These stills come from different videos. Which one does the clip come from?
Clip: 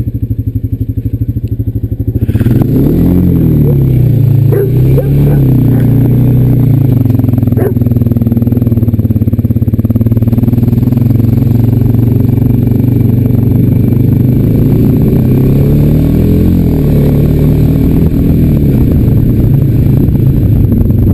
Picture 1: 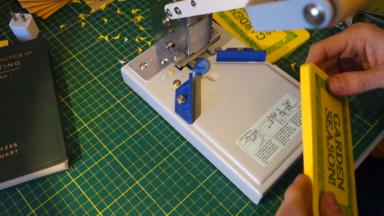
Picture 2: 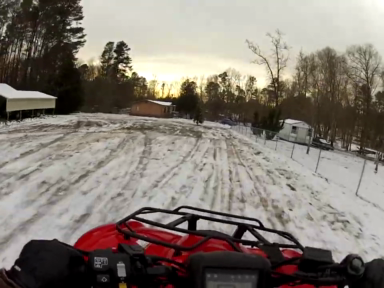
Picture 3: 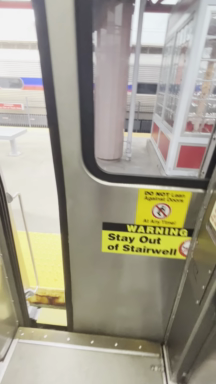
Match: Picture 2